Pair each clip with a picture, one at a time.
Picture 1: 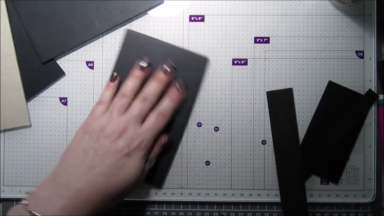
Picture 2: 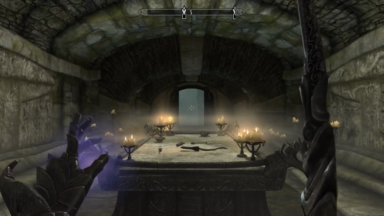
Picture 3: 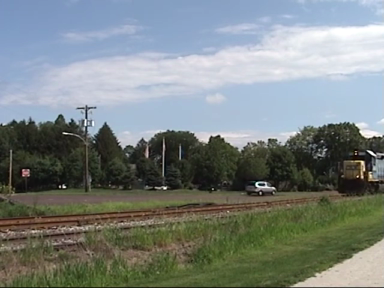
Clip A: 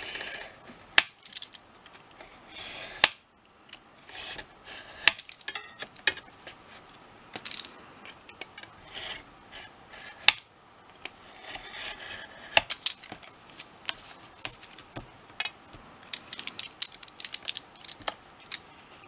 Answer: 1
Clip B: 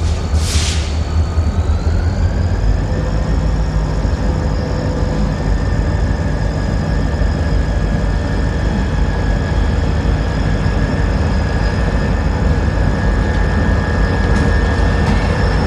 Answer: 3